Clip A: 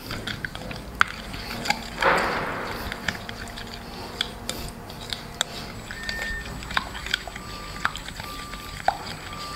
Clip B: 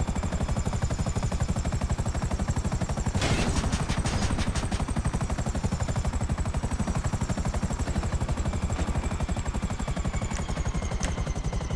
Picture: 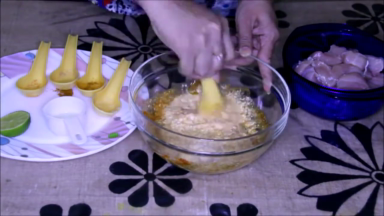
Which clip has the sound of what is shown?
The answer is A